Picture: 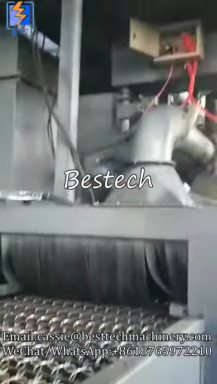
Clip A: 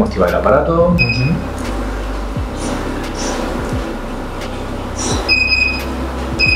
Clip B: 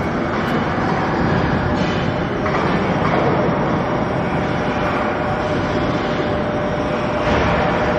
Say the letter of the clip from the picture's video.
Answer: B